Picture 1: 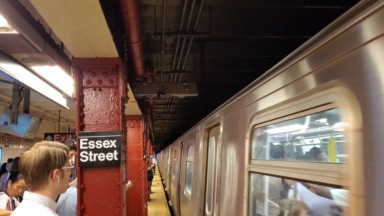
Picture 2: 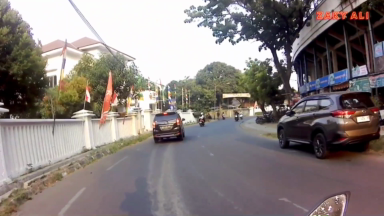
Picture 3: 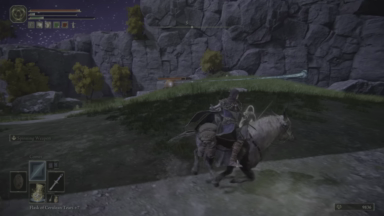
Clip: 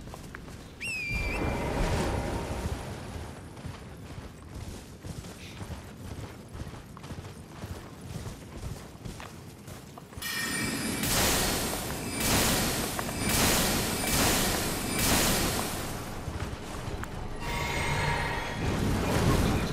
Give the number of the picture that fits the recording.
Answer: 3